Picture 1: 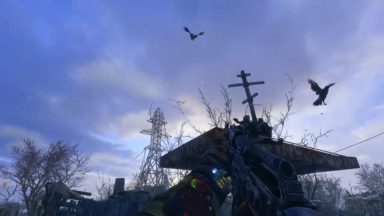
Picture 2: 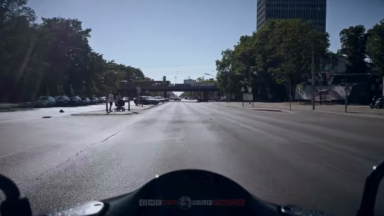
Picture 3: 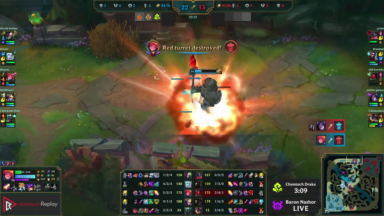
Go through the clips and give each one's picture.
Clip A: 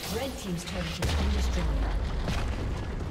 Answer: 3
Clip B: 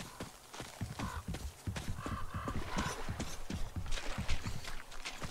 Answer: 1